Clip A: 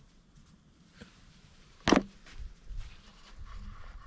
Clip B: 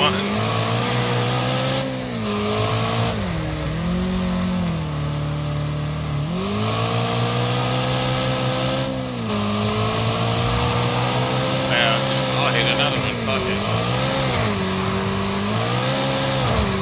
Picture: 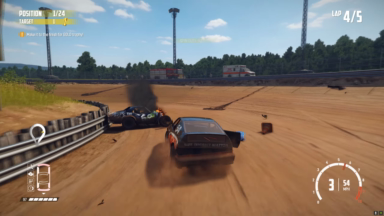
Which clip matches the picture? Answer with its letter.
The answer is B